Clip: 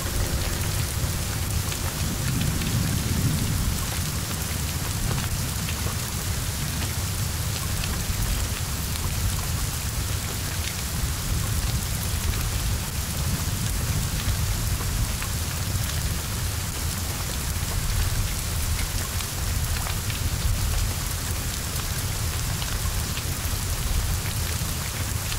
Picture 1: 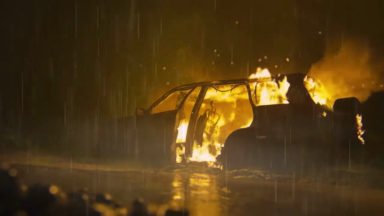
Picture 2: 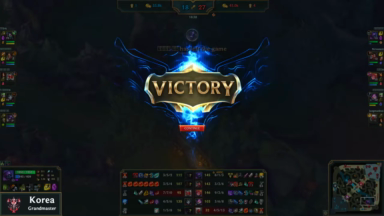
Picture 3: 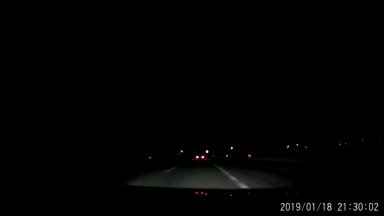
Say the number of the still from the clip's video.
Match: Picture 1